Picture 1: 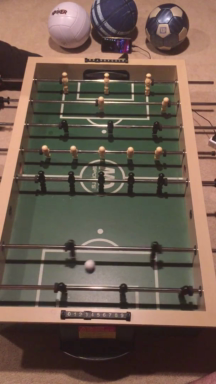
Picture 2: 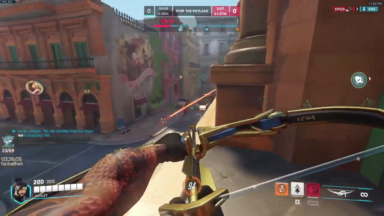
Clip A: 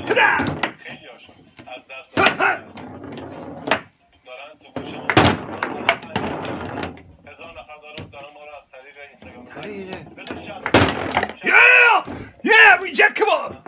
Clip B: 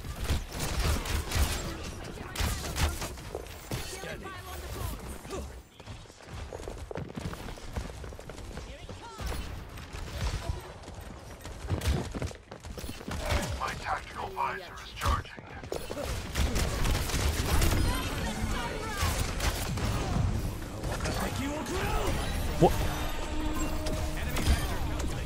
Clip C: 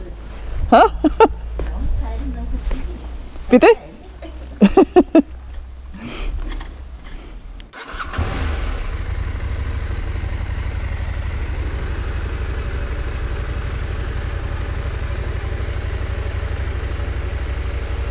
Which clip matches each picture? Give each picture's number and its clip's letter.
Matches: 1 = A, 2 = B